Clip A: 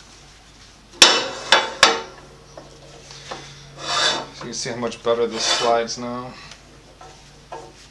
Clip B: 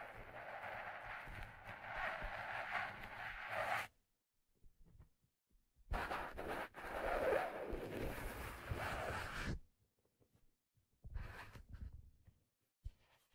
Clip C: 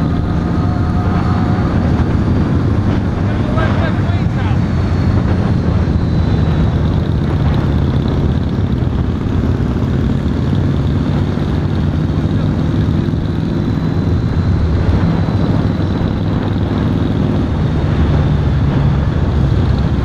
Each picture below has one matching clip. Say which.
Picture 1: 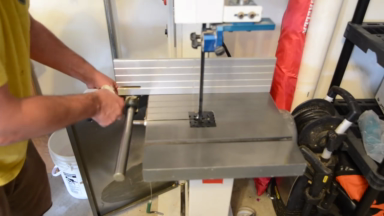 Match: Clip A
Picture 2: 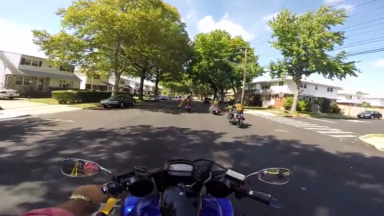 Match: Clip C